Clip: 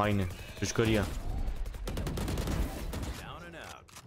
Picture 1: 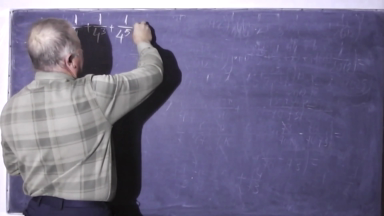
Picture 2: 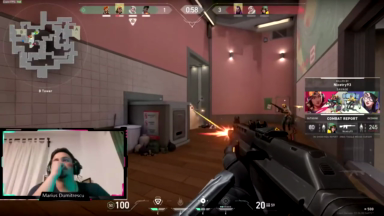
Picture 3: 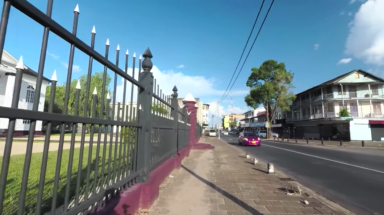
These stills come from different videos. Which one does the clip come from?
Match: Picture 2